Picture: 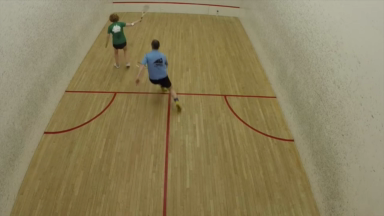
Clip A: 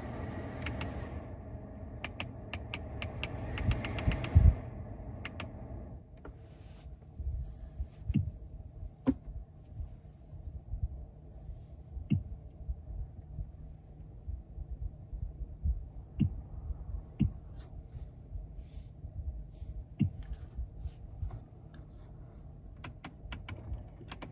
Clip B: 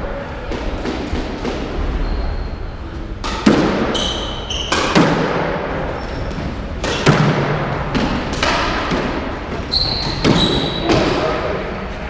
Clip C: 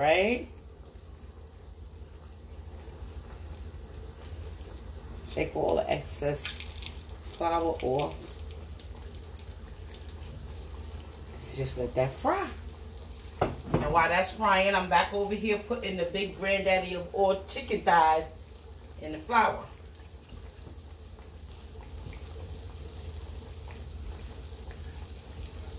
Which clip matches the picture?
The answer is B